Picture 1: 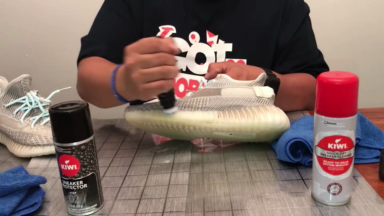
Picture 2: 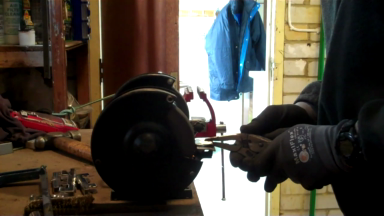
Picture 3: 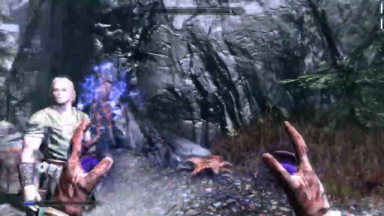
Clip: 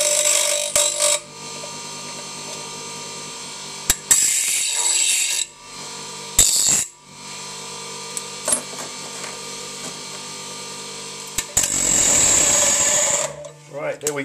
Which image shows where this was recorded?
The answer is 2